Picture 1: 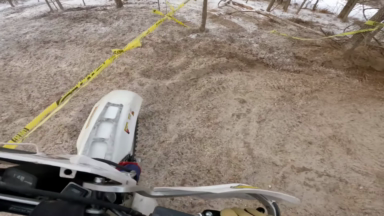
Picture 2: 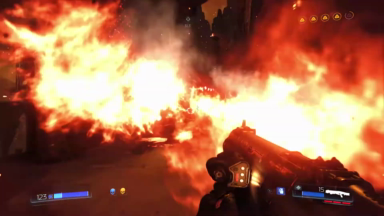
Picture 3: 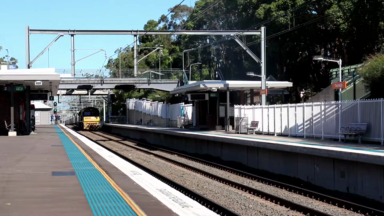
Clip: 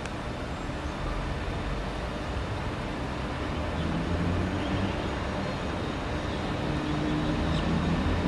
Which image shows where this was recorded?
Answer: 3